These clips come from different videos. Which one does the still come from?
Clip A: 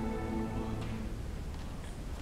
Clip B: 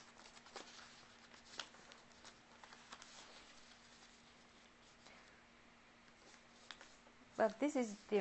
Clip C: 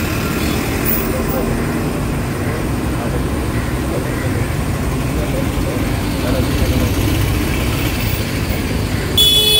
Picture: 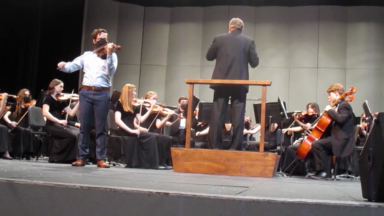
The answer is A